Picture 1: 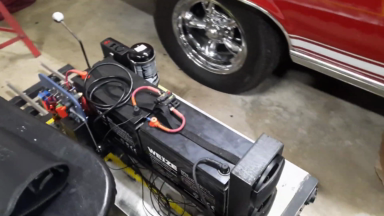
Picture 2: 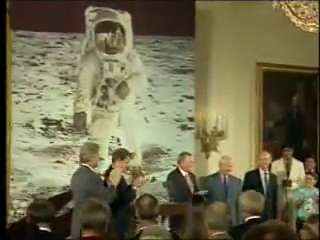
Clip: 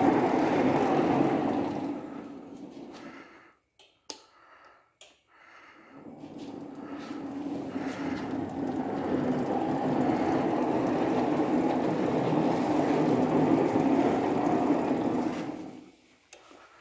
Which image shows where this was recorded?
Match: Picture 1